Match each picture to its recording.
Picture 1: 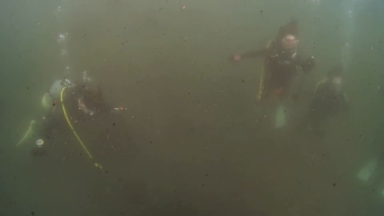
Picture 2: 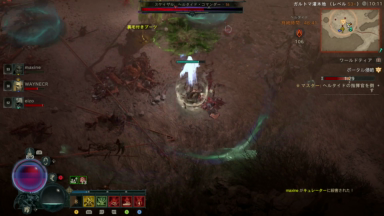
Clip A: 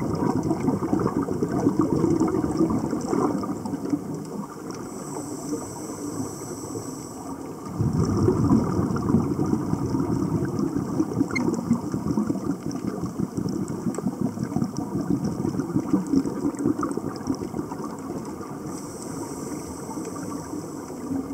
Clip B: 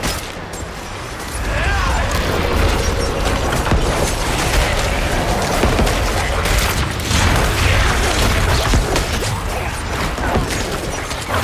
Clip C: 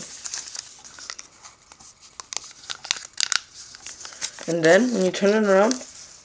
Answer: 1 A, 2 B